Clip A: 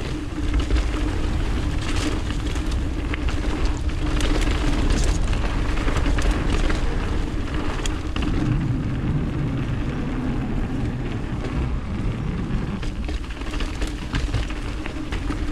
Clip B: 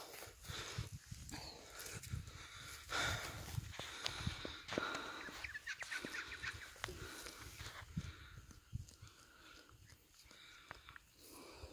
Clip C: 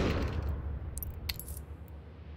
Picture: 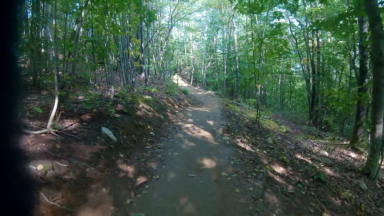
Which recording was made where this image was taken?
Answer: A